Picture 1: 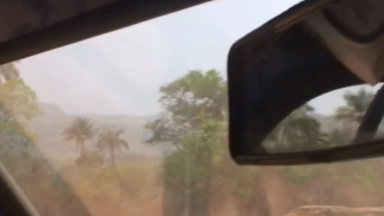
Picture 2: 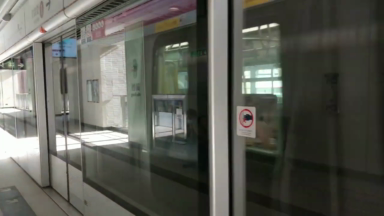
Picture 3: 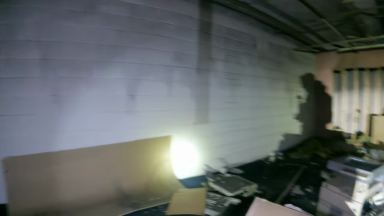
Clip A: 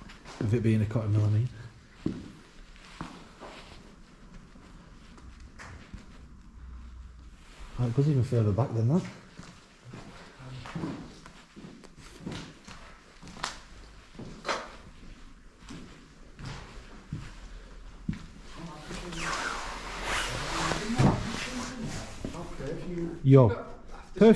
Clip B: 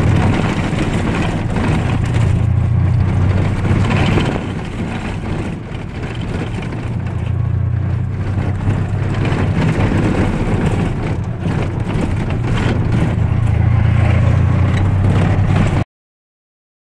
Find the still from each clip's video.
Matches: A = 3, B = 1